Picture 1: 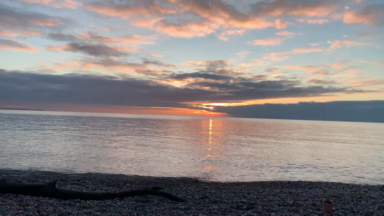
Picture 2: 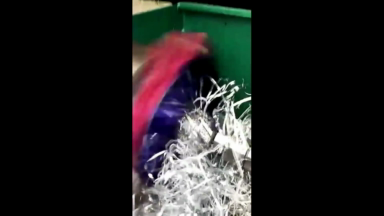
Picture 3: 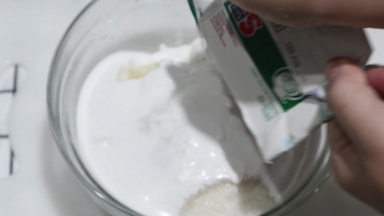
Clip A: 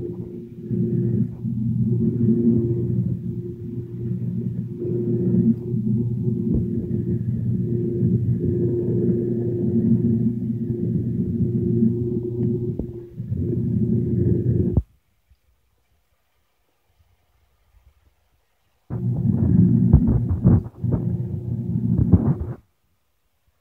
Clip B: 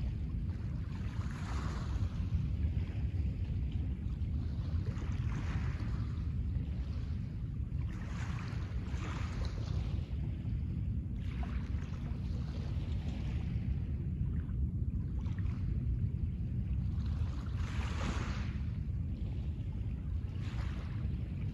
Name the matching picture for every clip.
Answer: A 2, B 1